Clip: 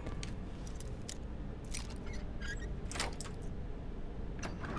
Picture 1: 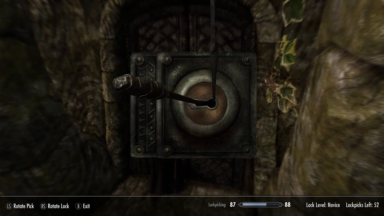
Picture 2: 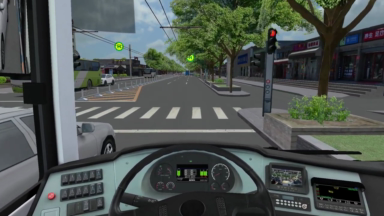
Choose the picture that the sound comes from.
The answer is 1